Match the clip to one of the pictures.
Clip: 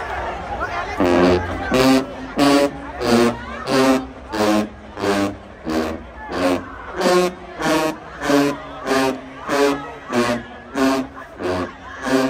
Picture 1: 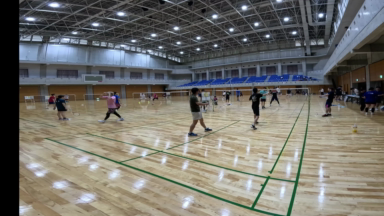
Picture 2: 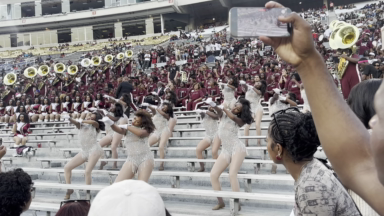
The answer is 2